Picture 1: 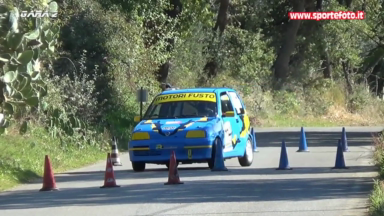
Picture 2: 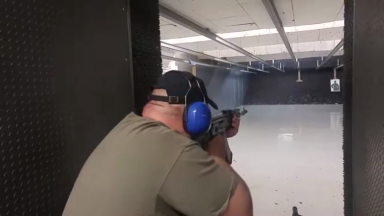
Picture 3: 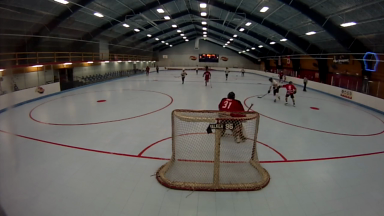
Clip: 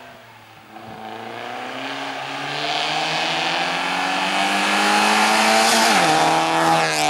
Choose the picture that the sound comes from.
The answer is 1